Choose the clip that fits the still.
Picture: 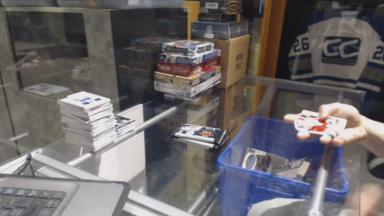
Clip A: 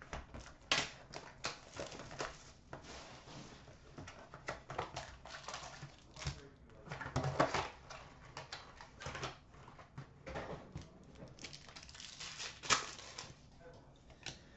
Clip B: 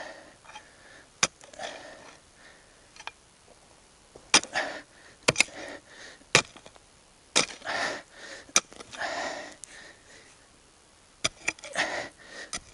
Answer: A